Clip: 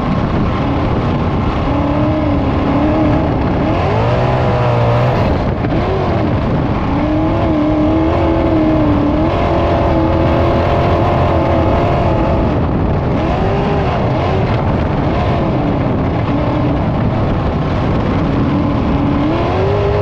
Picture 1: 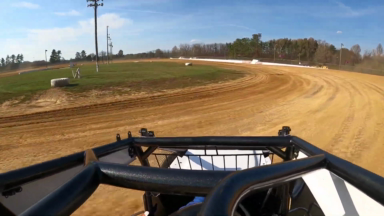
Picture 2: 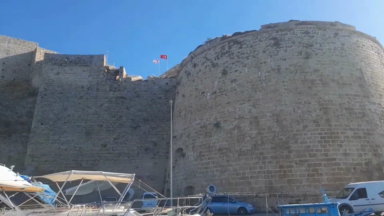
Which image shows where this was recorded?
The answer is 1